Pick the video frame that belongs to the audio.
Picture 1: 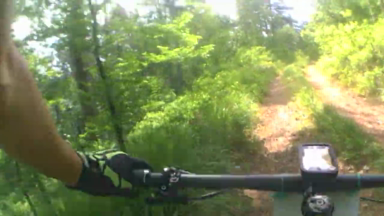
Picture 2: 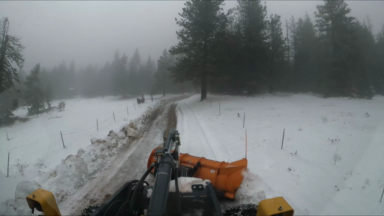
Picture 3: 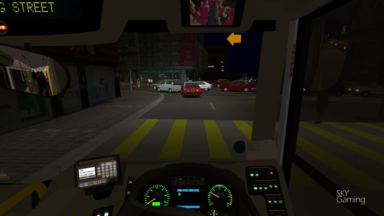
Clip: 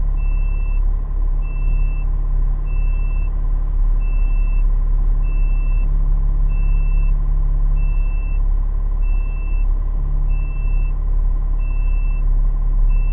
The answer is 3